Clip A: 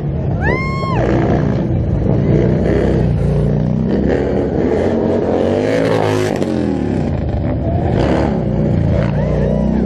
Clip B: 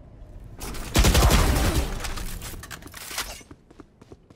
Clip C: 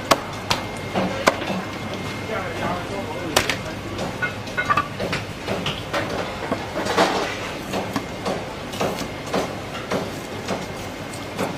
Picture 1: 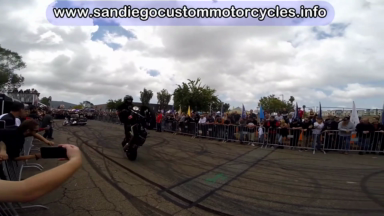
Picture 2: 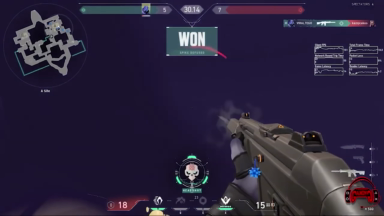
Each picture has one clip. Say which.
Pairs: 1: A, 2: B